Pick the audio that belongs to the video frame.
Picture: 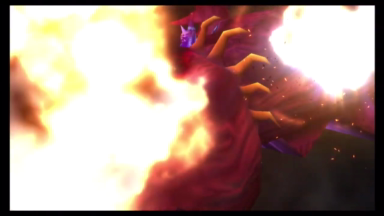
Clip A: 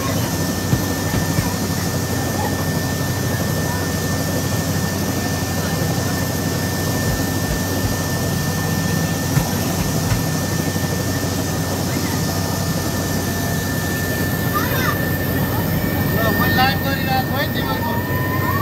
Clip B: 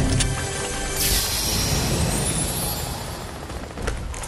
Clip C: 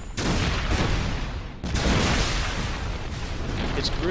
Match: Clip C